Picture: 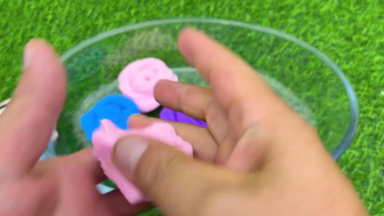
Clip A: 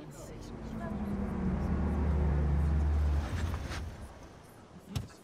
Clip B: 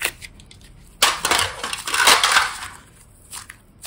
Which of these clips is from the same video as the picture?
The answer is B